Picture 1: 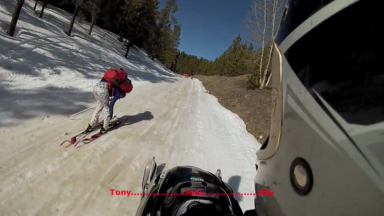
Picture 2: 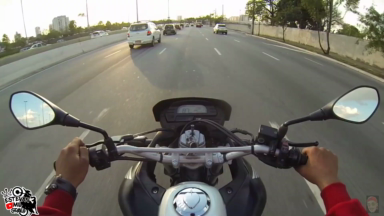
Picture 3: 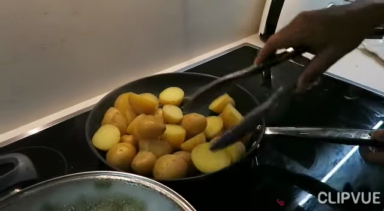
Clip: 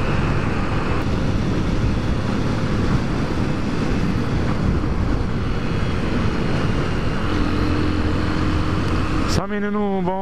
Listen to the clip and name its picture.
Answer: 2